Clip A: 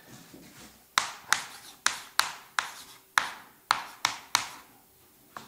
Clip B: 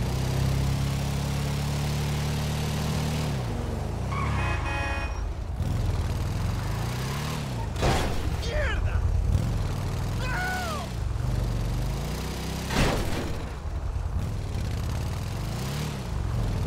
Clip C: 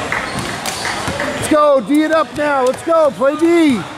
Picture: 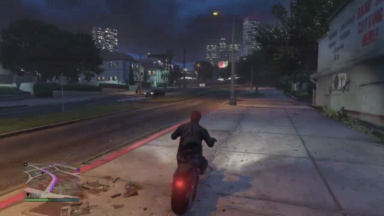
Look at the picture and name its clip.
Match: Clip B